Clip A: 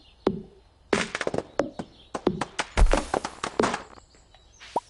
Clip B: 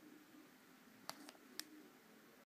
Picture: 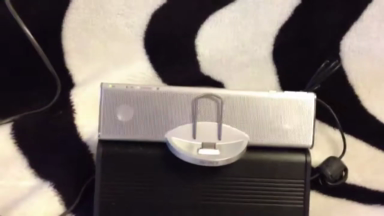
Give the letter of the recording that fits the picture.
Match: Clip B